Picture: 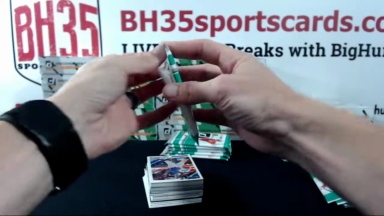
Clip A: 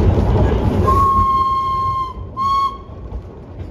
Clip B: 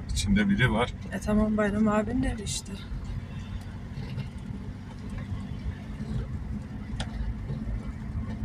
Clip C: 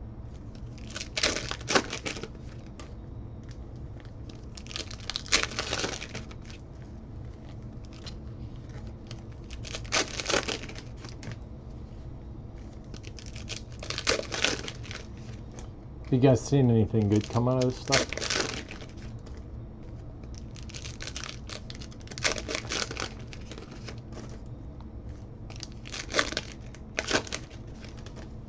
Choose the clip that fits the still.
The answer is C